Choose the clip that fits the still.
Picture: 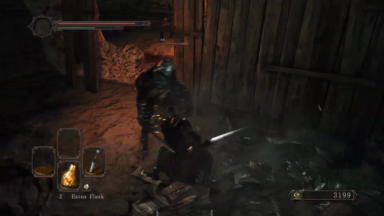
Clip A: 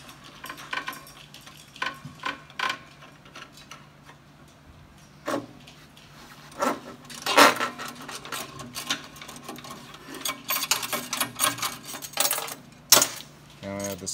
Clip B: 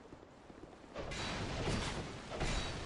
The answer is B